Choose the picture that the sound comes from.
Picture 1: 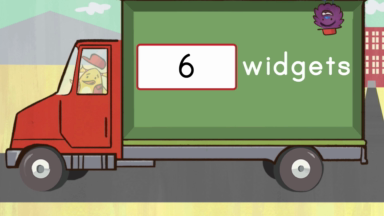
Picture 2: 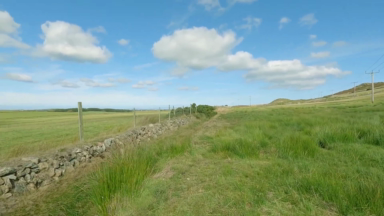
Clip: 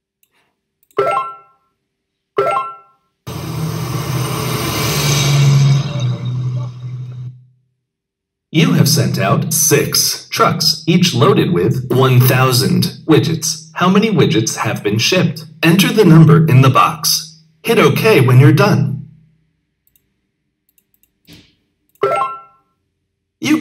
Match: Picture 1